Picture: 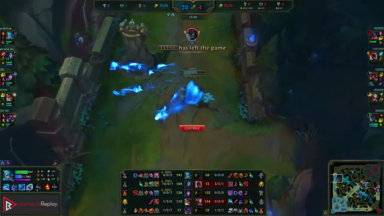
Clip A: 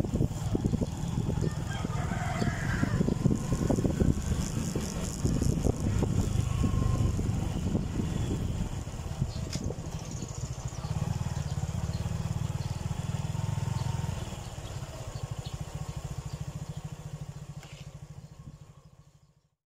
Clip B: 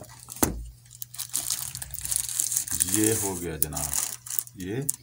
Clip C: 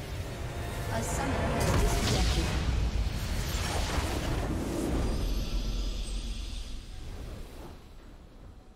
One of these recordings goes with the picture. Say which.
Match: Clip C